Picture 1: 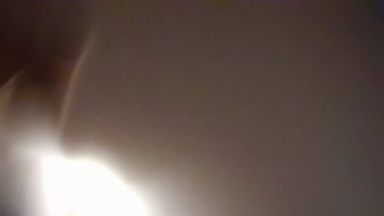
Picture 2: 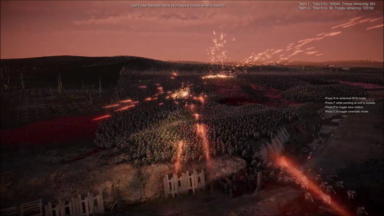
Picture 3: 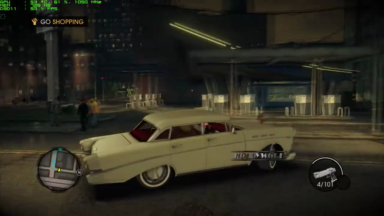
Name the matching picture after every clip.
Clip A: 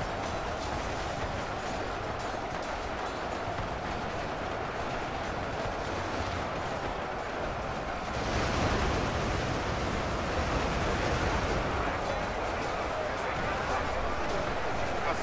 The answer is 2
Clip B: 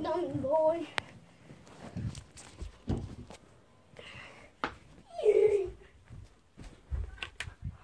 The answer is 1